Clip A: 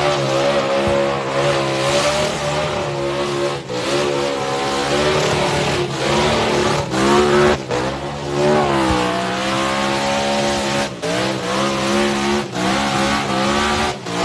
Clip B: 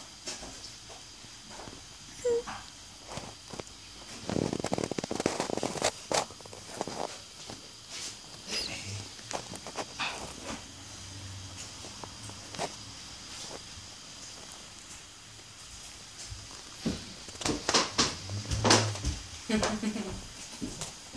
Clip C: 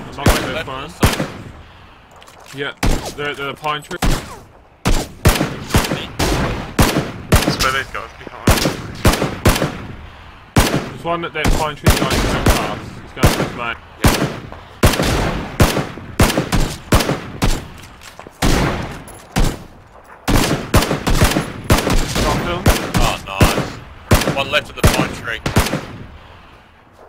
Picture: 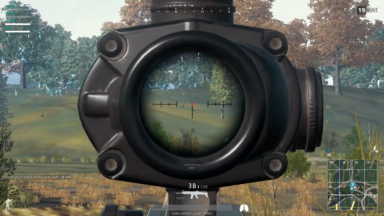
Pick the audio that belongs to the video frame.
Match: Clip C